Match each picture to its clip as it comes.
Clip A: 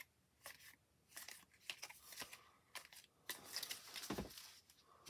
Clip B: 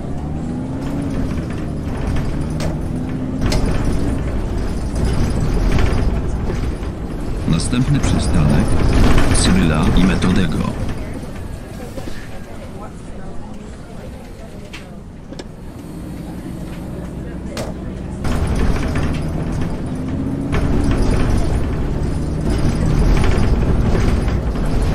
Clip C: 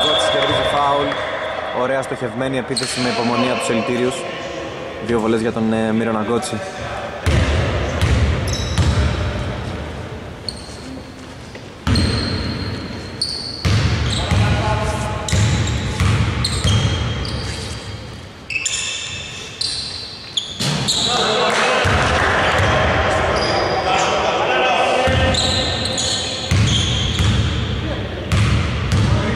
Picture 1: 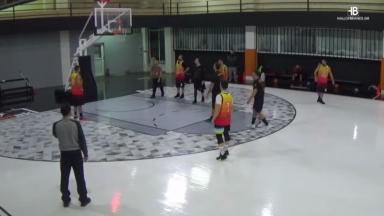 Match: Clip C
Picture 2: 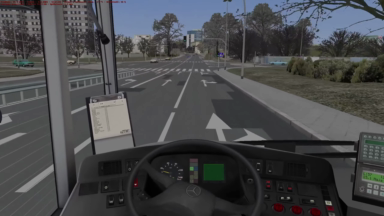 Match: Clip B